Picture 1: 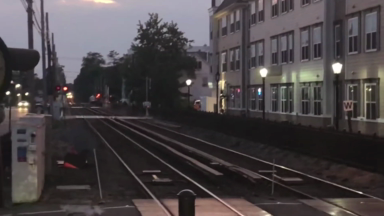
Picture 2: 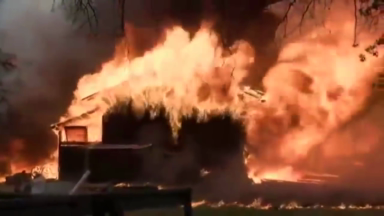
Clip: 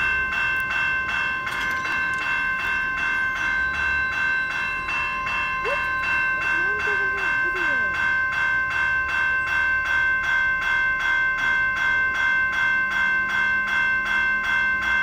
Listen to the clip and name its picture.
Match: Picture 1